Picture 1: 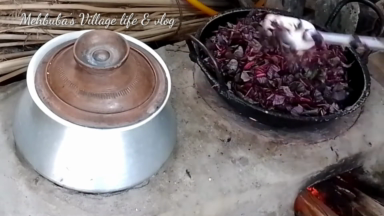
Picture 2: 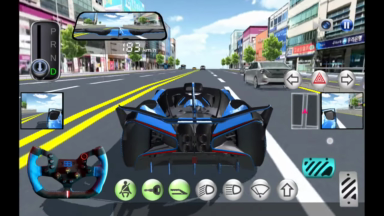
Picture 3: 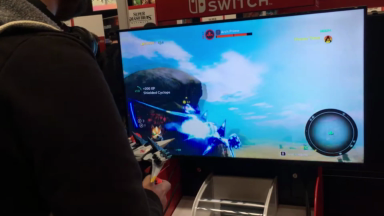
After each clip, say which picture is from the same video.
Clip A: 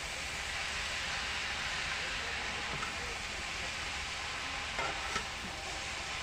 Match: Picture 1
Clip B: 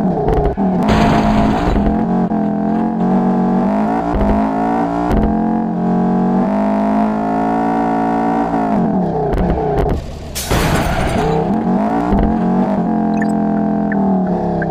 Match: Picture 2